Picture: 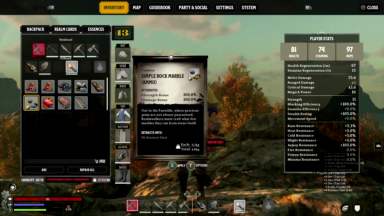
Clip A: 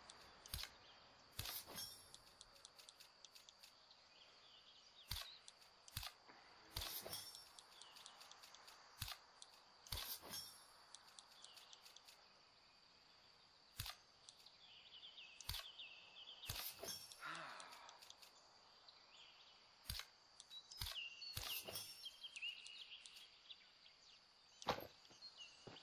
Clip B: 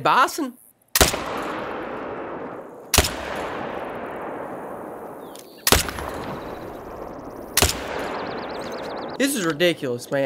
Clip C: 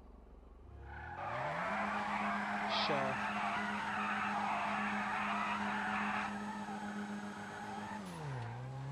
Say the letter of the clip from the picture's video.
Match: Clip A